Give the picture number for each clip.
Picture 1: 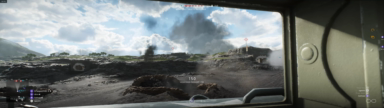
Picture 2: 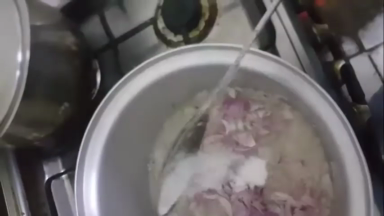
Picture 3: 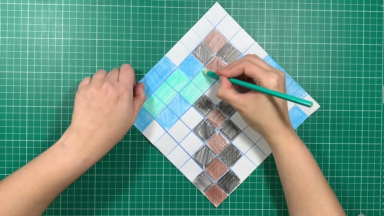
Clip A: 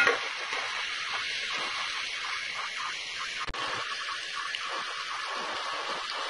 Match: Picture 2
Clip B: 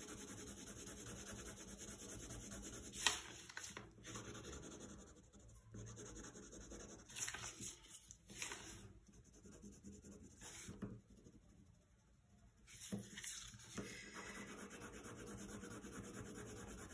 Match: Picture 3